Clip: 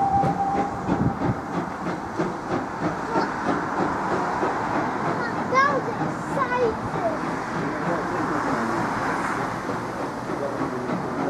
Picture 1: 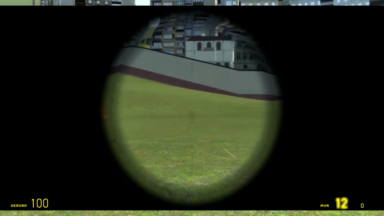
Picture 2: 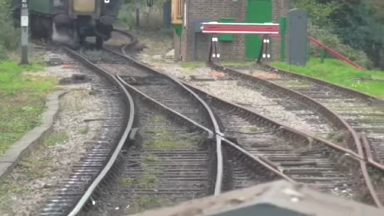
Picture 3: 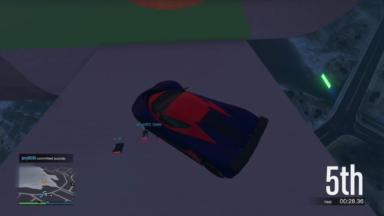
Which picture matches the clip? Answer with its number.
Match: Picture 2